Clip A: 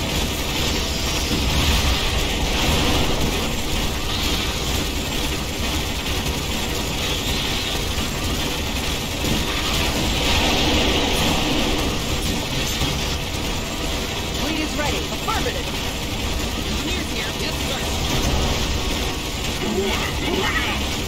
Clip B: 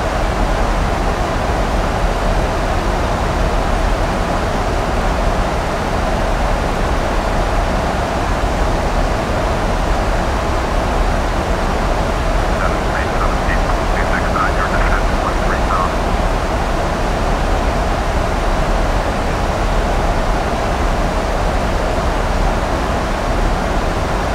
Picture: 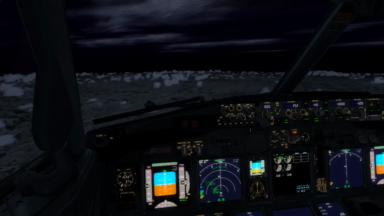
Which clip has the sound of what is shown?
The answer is B